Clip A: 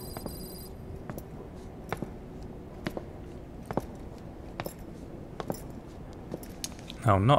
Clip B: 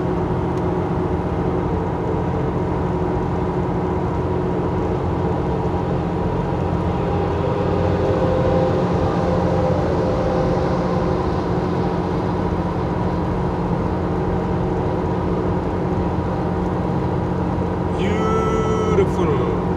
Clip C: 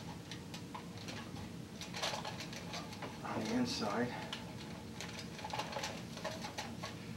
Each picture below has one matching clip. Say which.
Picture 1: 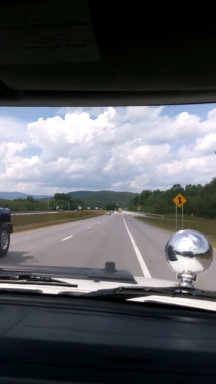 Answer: B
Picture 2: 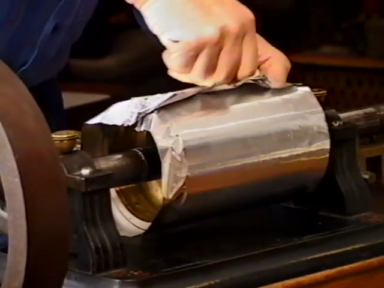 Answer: C